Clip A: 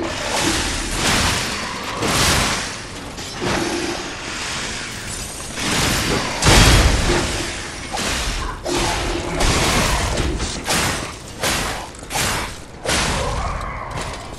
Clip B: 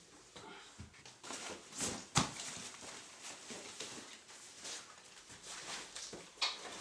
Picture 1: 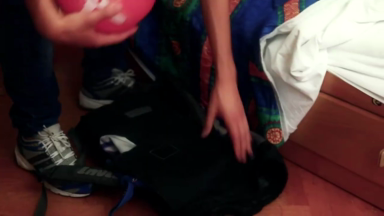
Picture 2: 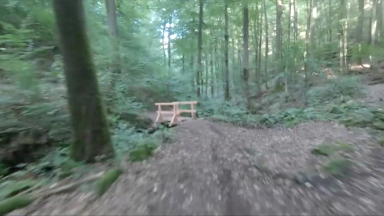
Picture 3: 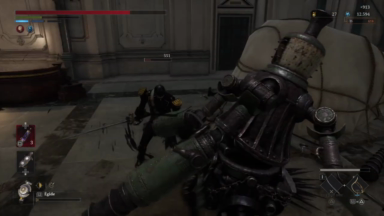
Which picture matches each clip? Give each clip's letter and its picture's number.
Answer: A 3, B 1